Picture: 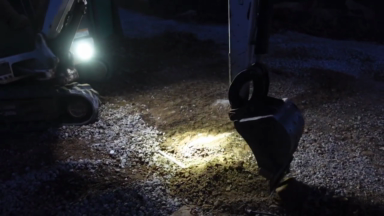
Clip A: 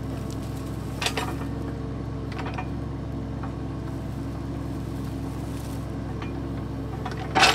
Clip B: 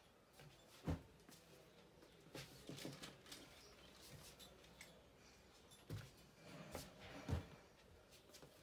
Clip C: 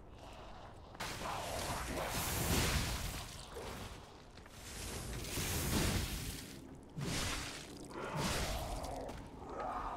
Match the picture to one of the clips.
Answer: A